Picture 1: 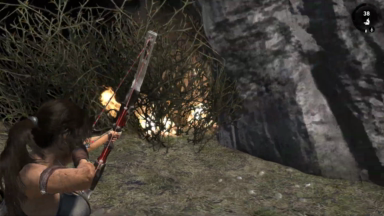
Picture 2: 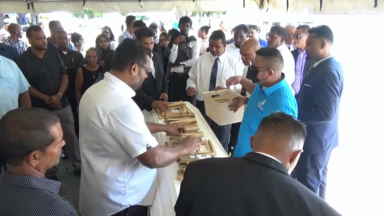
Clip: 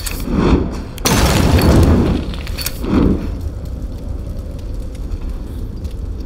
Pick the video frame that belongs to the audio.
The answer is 1